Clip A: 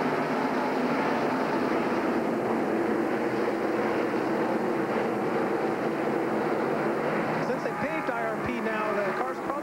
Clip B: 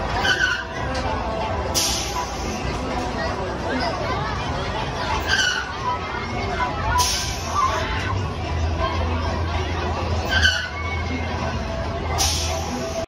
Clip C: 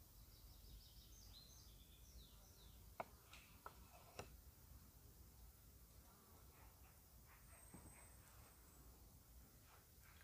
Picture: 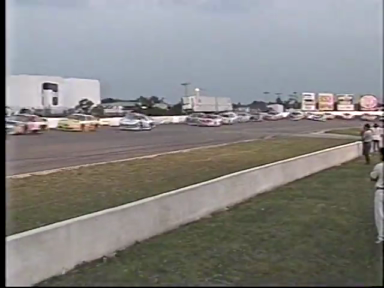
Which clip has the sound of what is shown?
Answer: A